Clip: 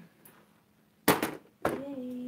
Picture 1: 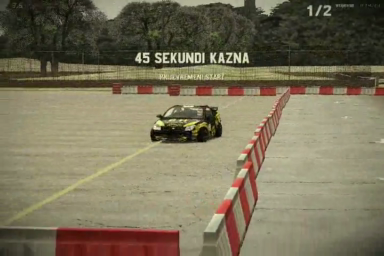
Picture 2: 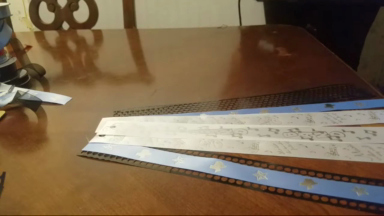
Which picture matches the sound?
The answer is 2